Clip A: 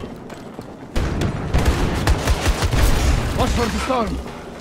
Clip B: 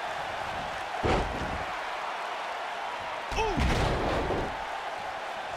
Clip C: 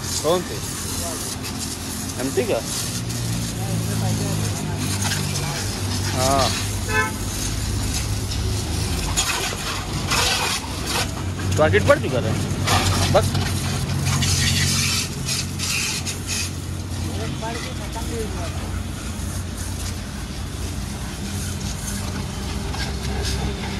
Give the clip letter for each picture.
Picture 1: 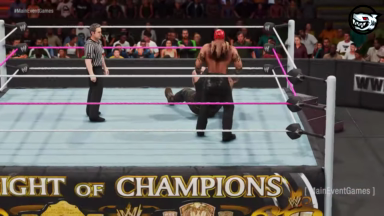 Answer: B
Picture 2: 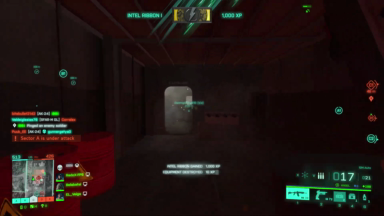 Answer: A